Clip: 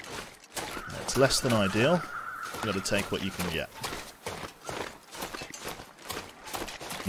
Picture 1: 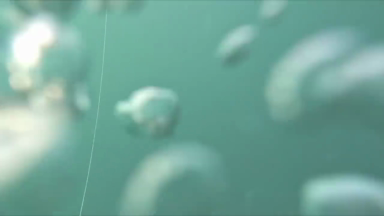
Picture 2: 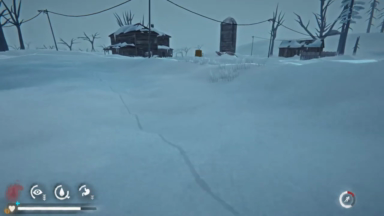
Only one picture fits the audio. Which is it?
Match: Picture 2